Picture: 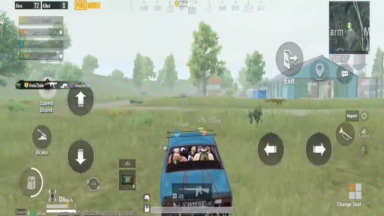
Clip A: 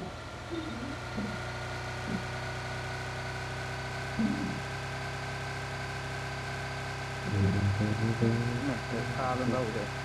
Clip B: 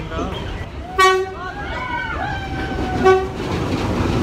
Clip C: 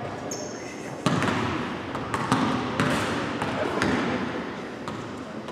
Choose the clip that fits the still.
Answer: A